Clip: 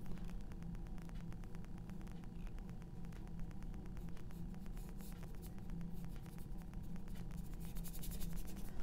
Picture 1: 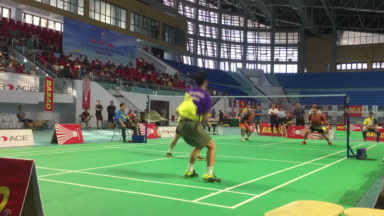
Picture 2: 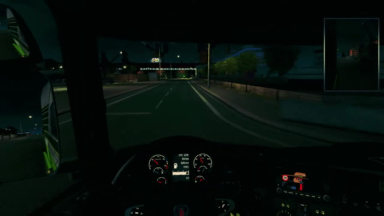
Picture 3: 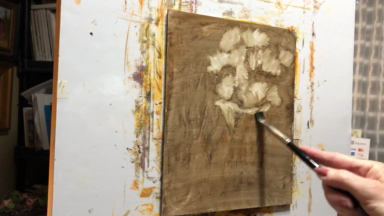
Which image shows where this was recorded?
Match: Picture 3